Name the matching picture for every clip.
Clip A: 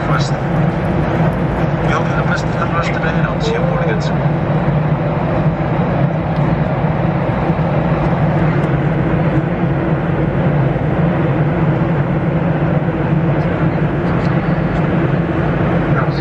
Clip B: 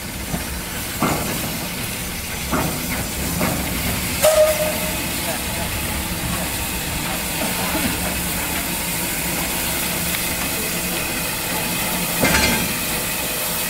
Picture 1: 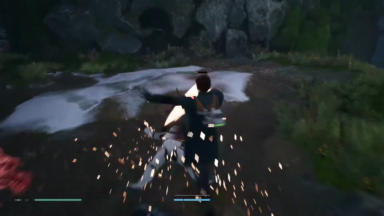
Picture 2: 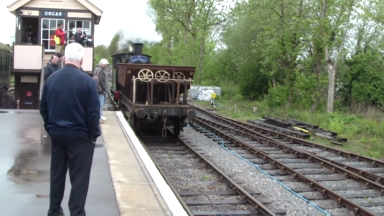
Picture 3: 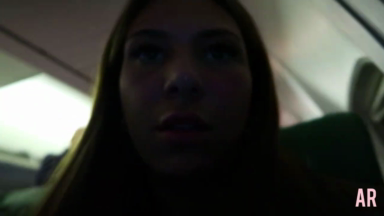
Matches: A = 3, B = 2